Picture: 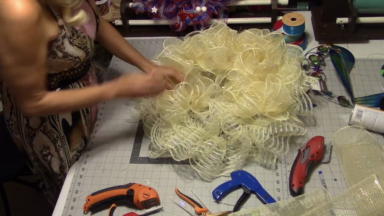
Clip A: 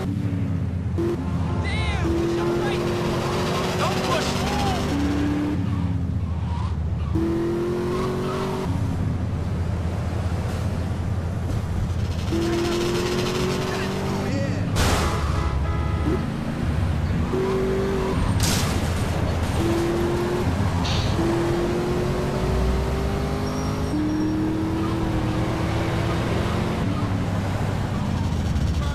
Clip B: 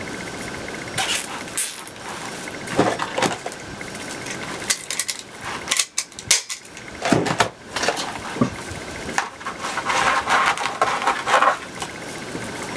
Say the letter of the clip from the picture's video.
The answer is B